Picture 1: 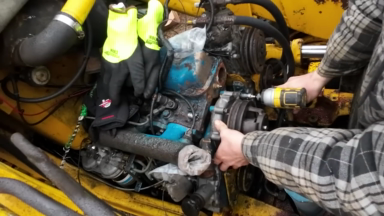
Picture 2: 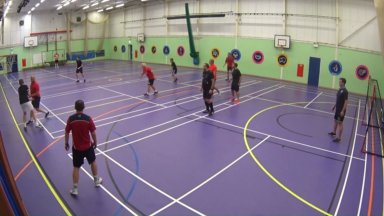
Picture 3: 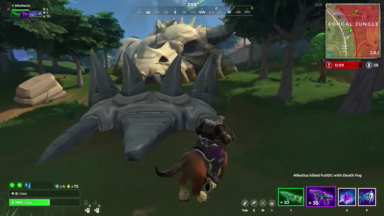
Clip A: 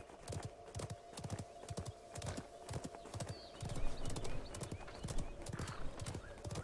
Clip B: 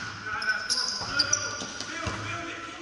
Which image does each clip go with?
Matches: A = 3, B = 2